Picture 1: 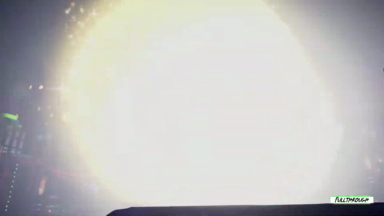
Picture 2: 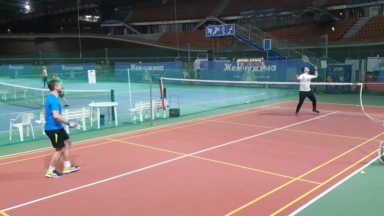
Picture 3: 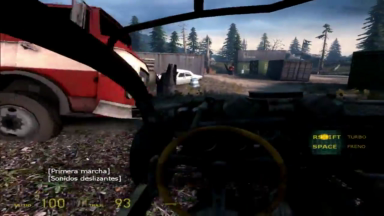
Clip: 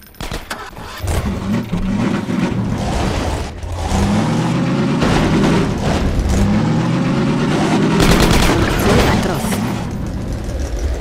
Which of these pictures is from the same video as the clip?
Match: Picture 3